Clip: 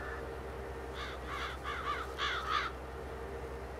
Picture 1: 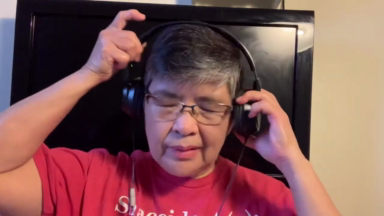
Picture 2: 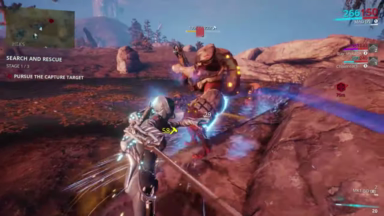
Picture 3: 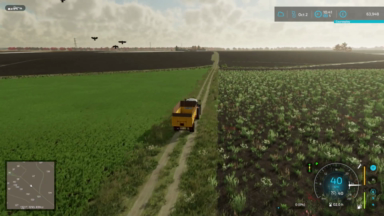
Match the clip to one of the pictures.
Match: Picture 3